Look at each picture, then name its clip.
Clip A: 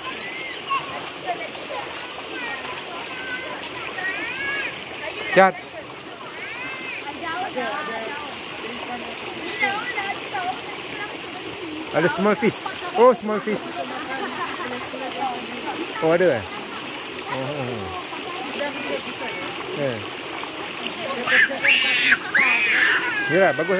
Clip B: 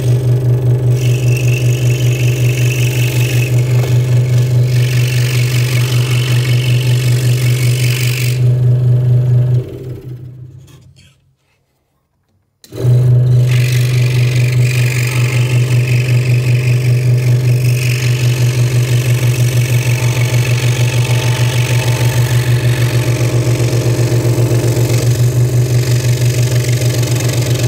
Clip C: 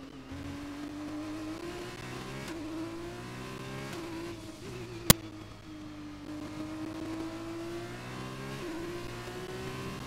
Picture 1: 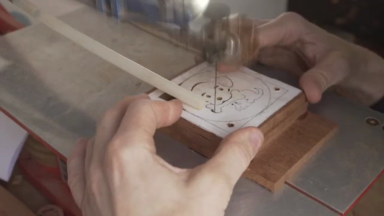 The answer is B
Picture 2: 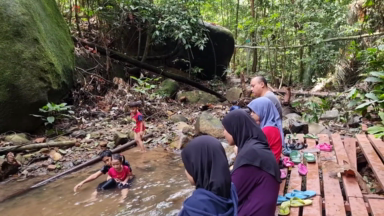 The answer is A